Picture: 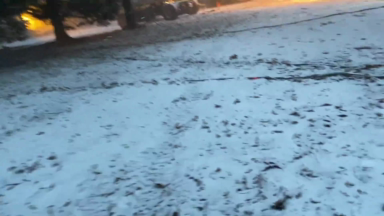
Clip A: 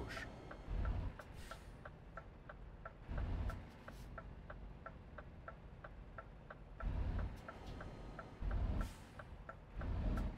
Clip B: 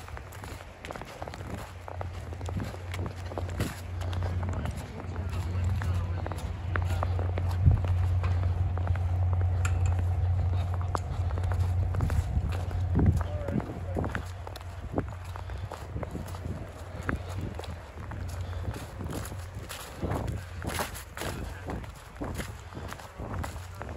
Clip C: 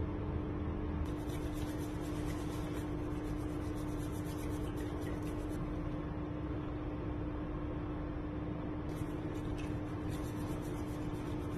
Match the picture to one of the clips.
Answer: B